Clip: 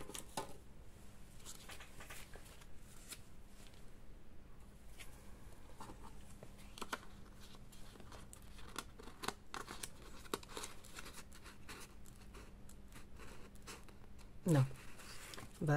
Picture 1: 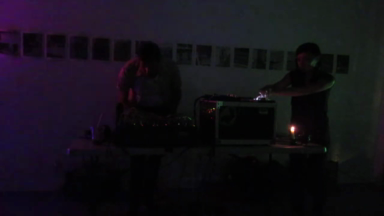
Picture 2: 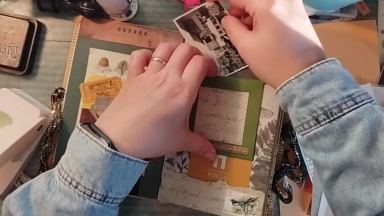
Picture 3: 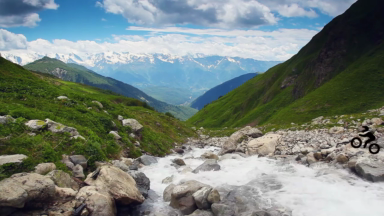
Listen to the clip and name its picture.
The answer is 2